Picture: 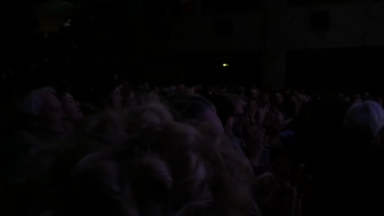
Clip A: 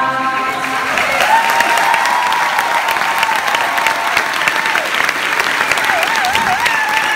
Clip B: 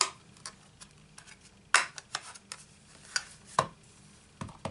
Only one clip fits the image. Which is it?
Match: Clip A